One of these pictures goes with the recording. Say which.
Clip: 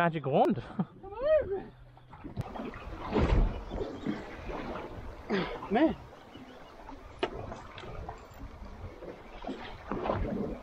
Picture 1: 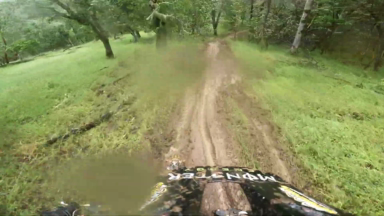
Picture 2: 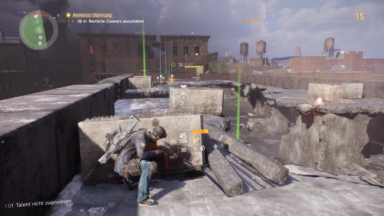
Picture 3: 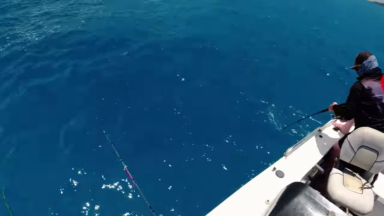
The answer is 3